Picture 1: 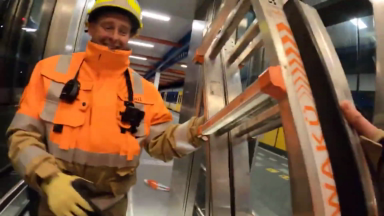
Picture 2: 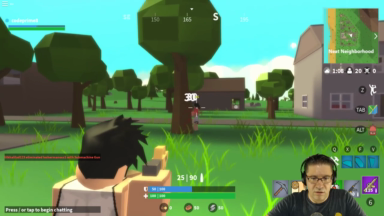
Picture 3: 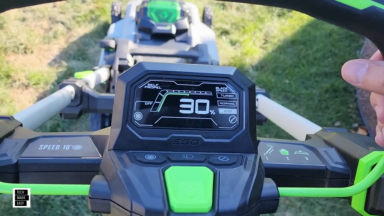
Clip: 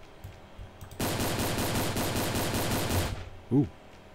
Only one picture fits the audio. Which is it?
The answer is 2